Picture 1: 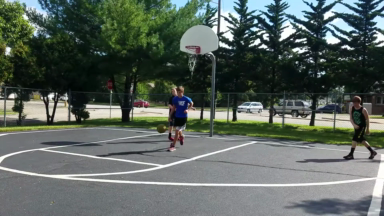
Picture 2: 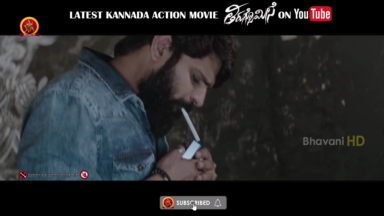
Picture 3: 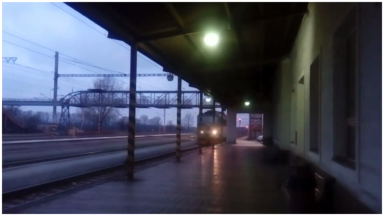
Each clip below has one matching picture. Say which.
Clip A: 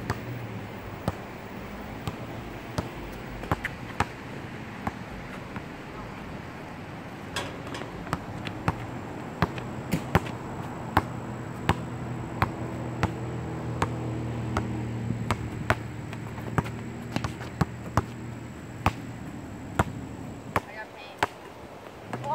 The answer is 1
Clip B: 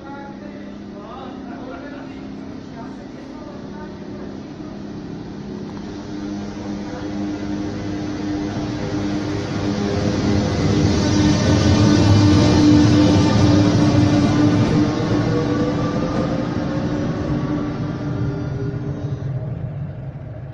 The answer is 3